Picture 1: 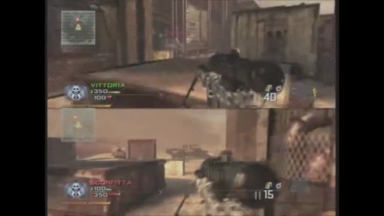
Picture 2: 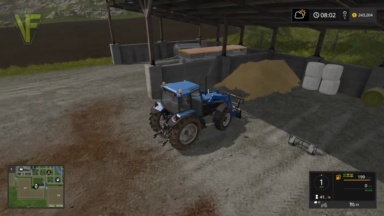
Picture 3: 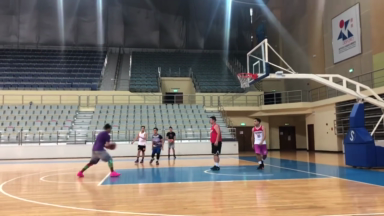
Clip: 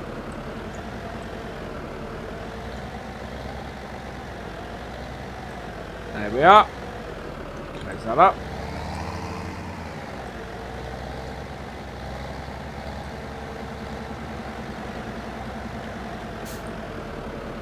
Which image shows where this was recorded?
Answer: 2